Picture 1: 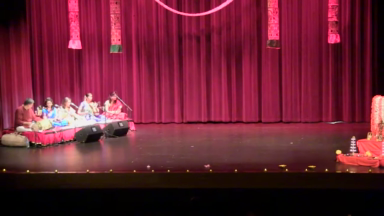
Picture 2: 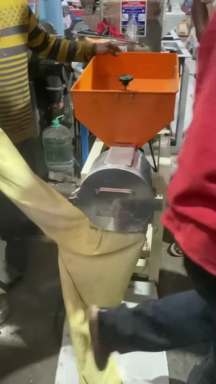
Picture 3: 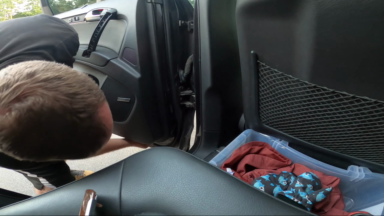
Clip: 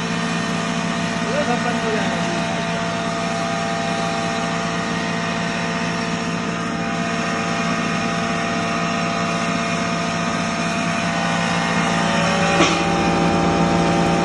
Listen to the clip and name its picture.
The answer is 2